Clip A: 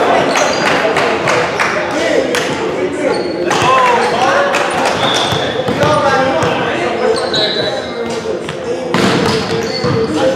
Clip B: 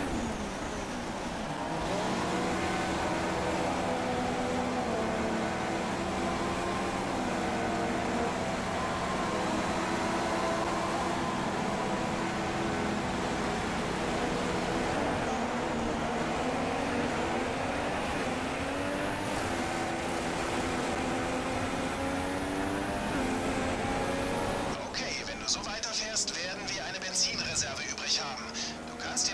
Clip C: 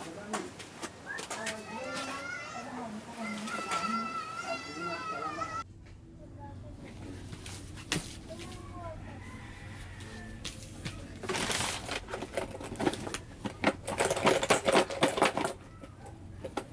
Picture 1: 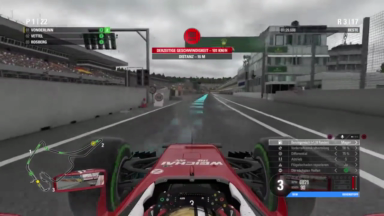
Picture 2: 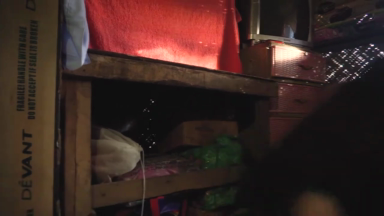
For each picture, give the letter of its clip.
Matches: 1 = B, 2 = C